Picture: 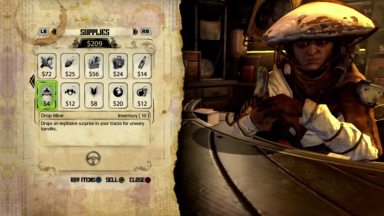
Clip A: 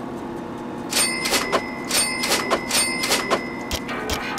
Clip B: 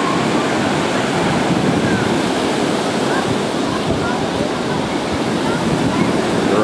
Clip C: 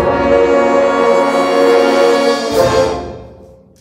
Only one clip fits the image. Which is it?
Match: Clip A